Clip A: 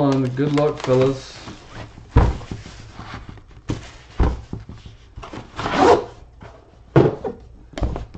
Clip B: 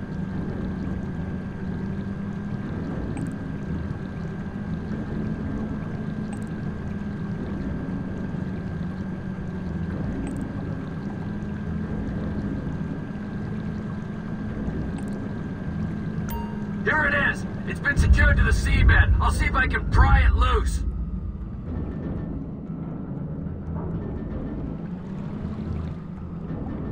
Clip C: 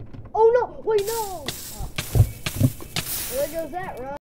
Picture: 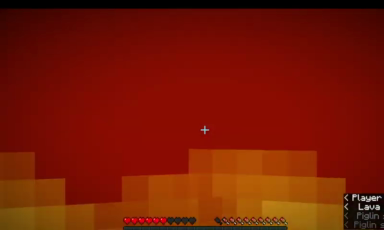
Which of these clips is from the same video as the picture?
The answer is C